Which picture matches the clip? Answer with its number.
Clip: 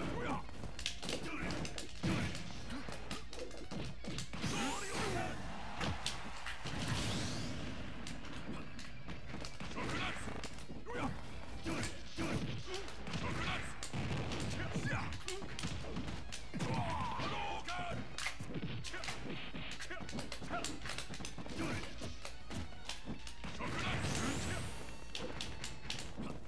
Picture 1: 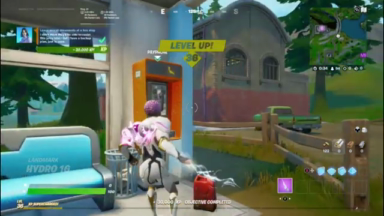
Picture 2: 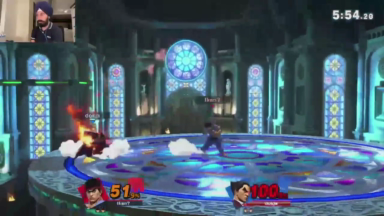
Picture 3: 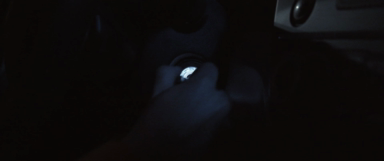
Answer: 2